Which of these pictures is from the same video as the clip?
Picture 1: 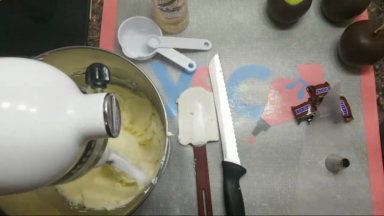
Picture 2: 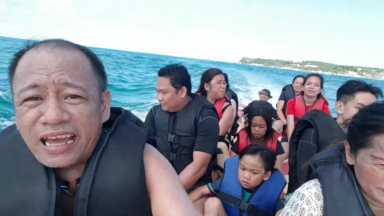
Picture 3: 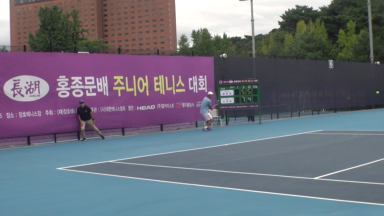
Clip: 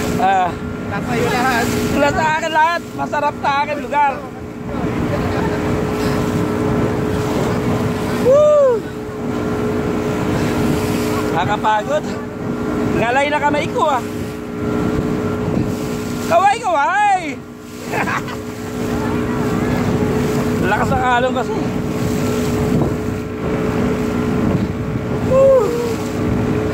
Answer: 2